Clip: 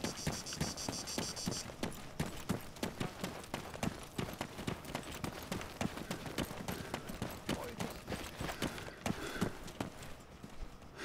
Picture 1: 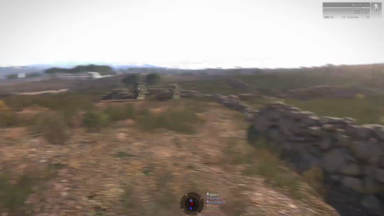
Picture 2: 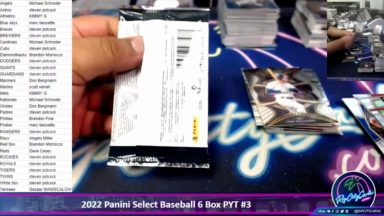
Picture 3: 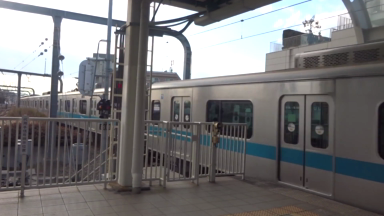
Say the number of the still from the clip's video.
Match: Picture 1